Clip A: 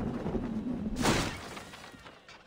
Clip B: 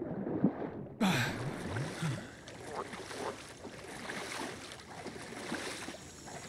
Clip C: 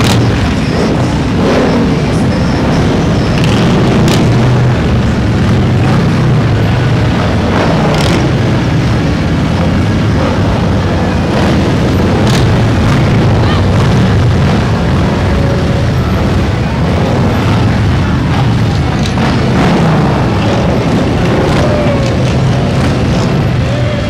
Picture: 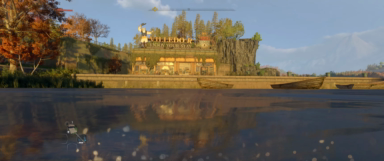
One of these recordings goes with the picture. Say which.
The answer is B